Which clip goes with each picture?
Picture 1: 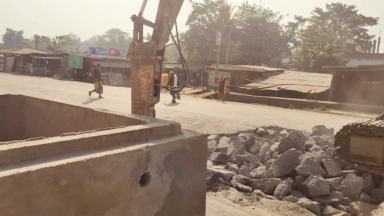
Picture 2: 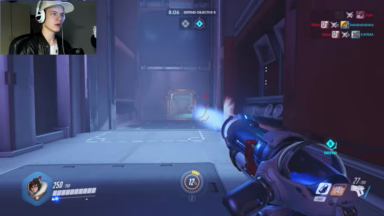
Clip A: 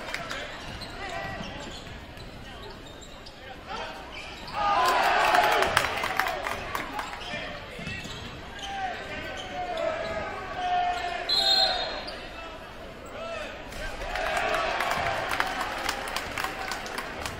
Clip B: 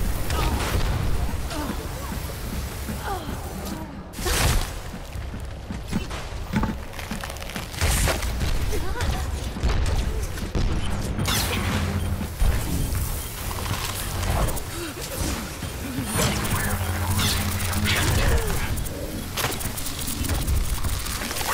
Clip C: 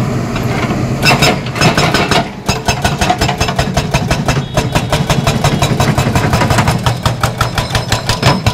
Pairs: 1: C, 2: B